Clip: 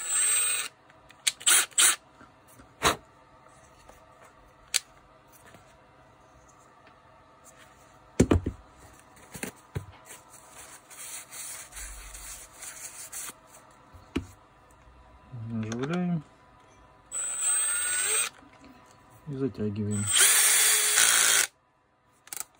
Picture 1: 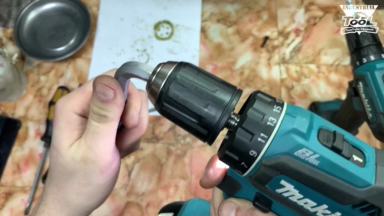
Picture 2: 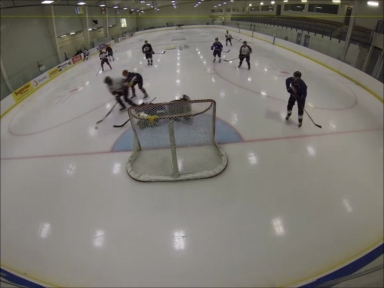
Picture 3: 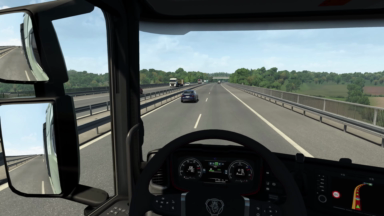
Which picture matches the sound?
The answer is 1